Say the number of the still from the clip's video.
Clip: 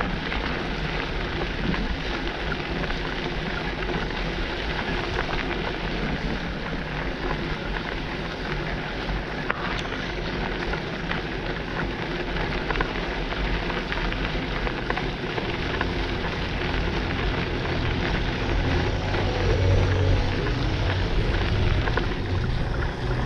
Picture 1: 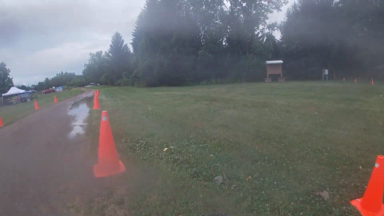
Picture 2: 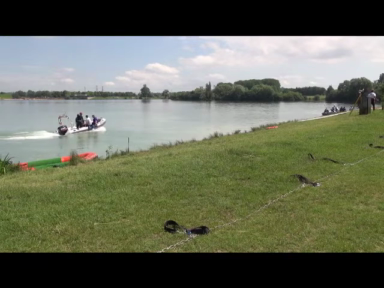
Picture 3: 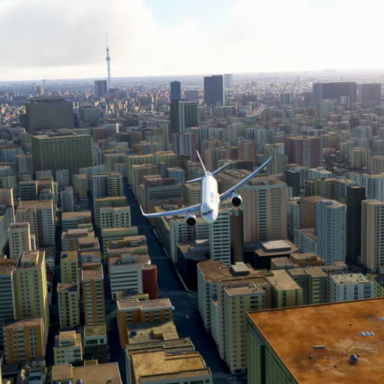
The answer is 1